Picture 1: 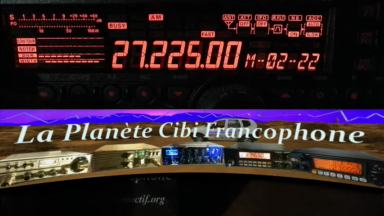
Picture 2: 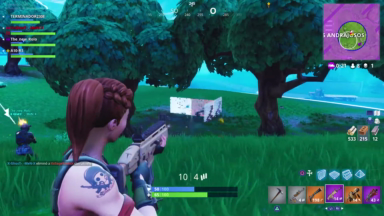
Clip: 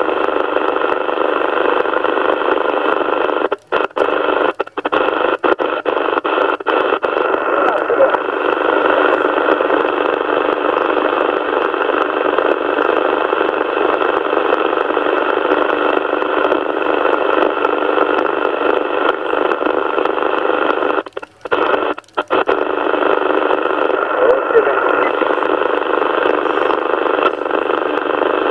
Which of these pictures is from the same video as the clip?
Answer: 1